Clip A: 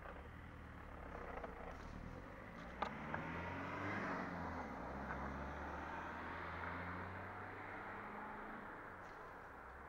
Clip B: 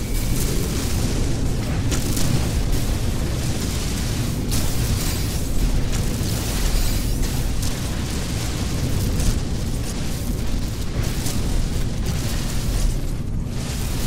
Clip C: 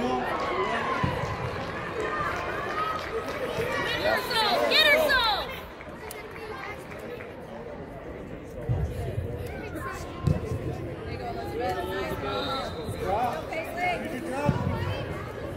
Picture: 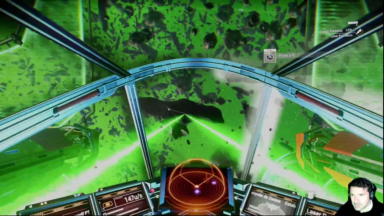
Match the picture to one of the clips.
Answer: B